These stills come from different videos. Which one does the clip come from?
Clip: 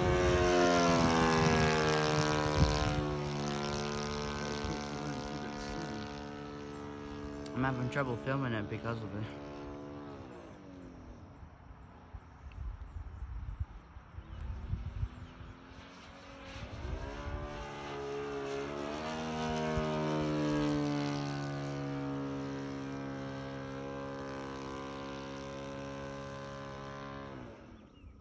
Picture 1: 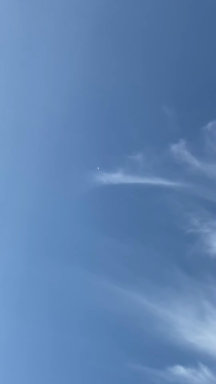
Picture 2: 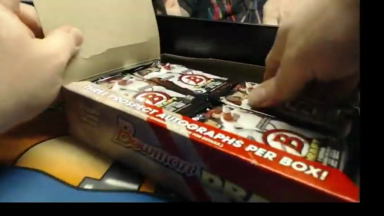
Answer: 1